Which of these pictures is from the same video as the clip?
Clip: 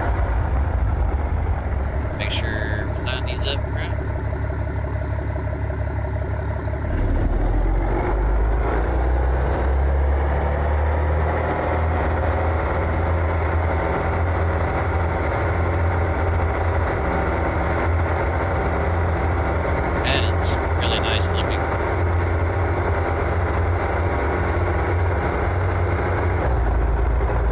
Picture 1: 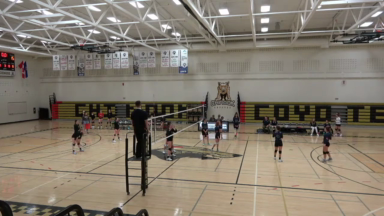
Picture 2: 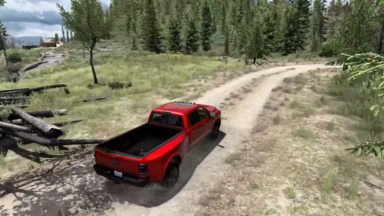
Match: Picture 2